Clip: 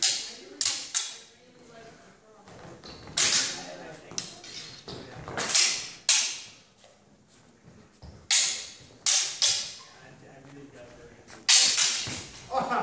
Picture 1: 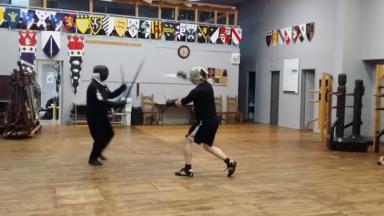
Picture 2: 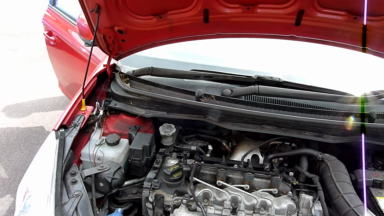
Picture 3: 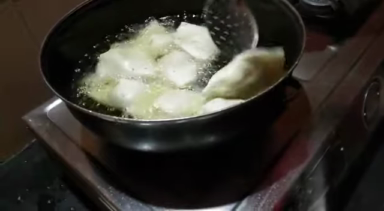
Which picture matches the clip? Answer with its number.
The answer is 1